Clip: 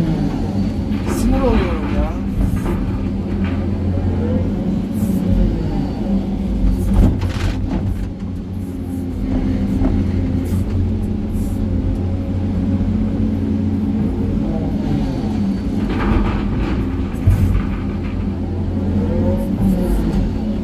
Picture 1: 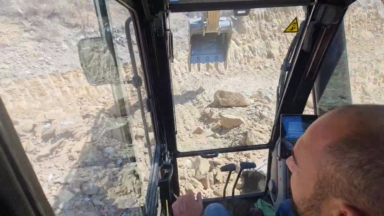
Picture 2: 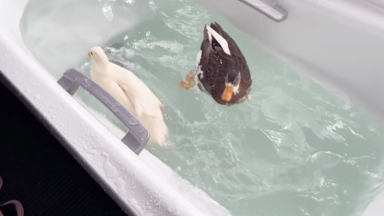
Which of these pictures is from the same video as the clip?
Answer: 1